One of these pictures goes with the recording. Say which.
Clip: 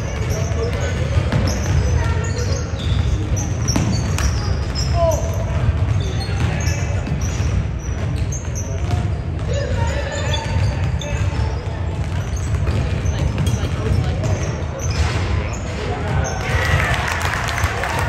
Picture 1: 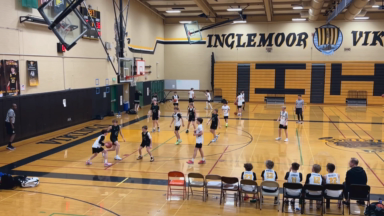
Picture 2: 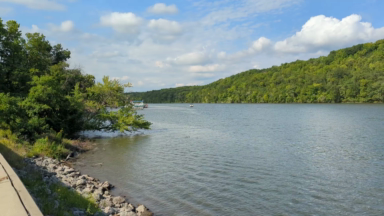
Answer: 1